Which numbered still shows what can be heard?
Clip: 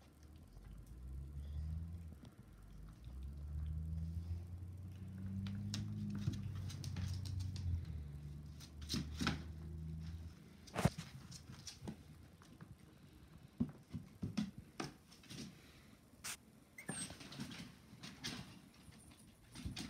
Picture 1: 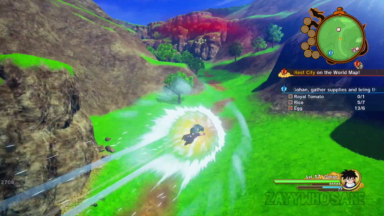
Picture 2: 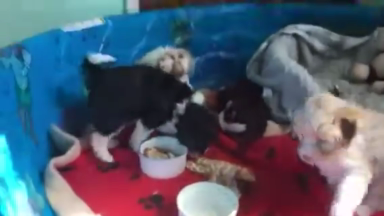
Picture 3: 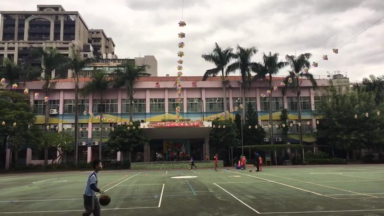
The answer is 2